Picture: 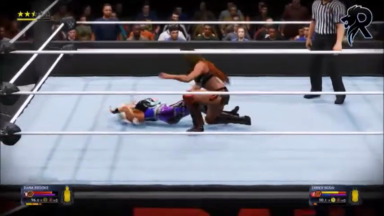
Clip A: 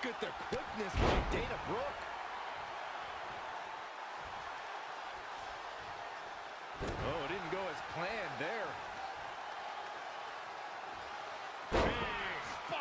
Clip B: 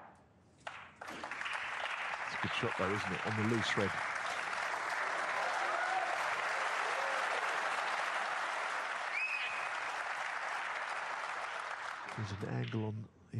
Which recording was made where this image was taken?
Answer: A